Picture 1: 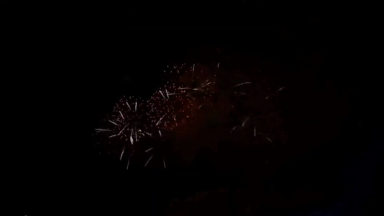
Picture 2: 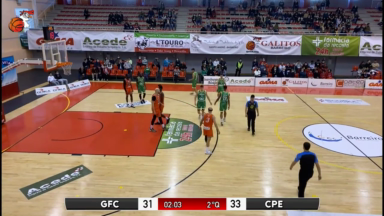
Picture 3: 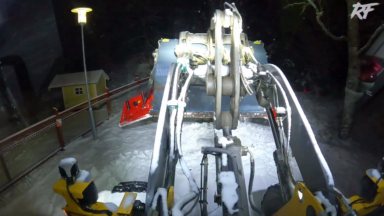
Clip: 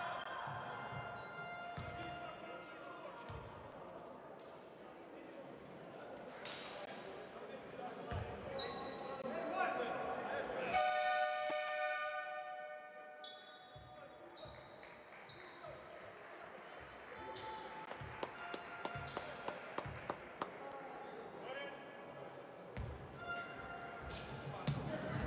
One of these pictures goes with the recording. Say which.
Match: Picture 2